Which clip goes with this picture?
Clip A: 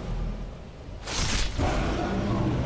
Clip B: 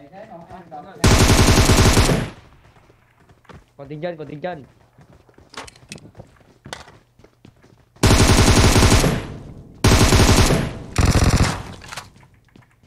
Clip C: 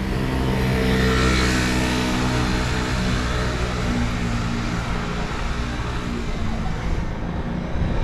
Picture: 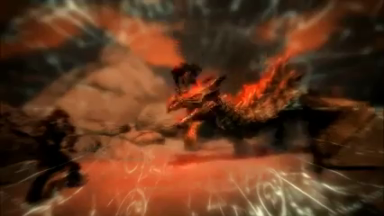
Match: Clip A